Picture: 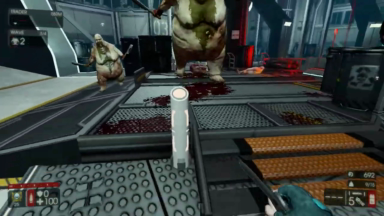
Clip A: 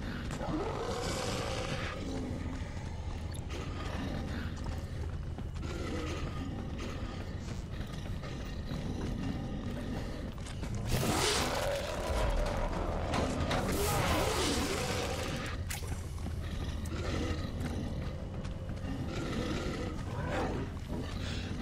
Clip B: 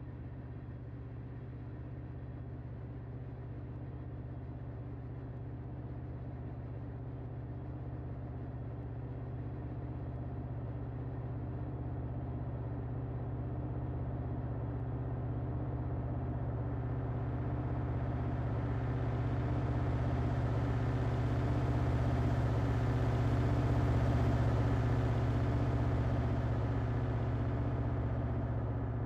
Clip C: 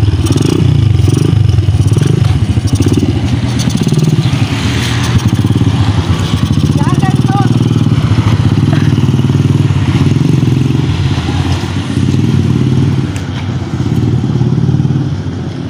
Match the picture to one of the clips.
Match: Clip A